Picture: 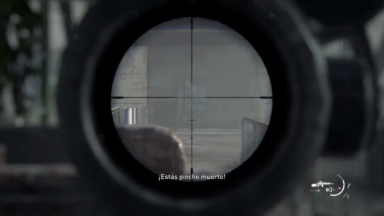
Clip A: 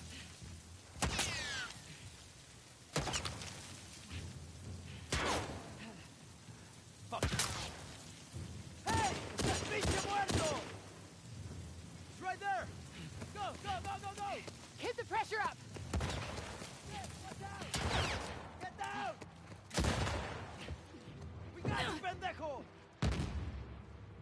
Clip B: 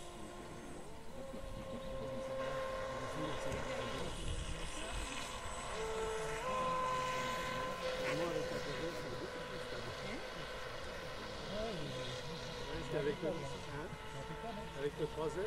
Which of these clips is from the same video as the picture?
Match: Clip A